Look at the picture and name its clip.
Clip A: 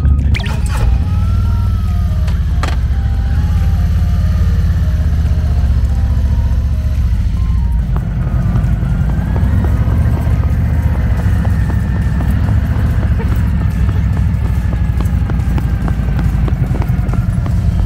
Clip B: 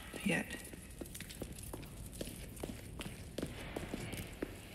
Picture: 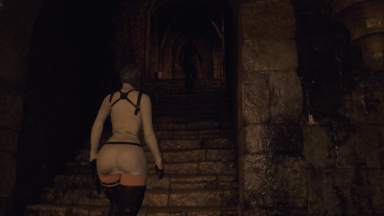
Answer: B